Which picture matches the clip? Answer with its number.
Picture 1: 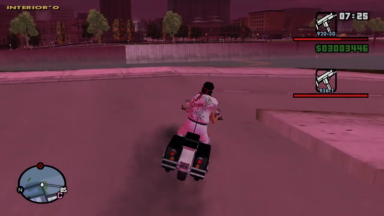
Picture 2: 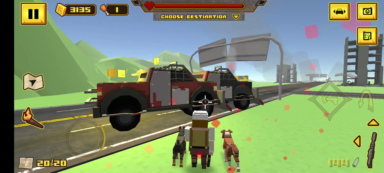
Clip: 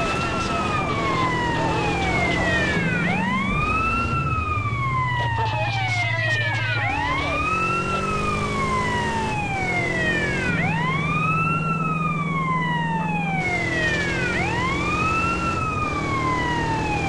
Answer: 1